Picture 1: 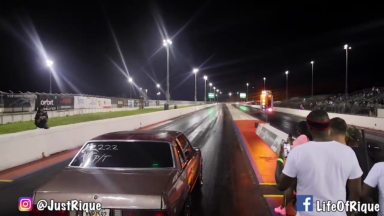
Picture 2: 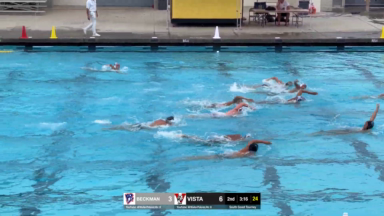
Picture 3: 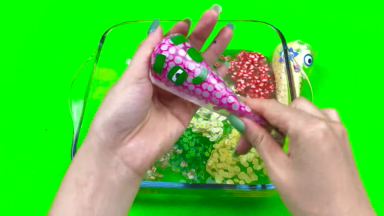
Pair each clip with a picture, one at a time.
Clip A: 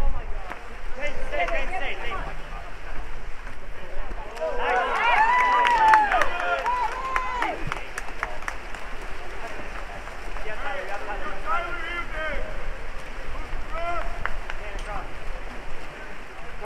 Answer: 2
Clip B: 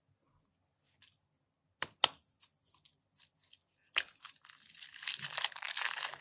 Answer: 3